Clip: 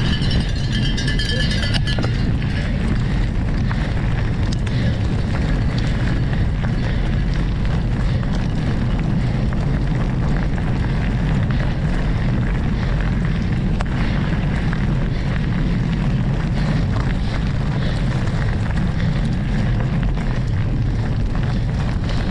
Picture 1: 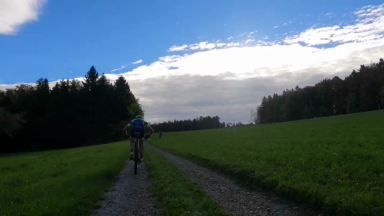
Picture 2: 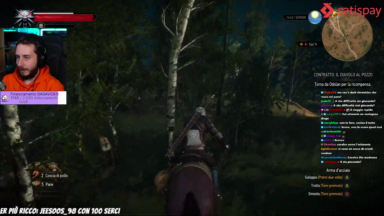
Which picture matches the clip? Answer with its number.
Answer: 1